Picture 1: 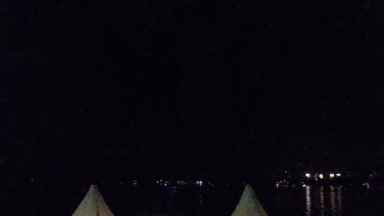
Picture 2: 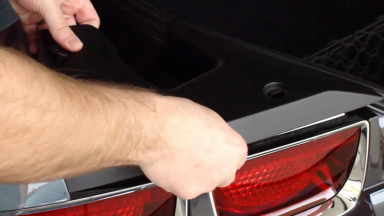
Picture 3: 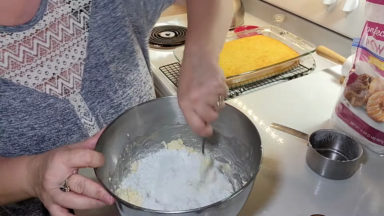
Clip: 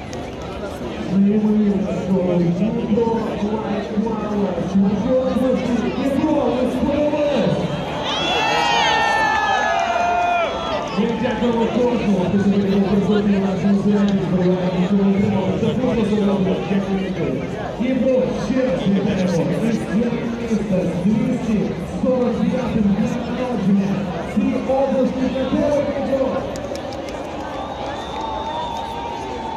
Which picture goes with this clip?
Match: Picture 1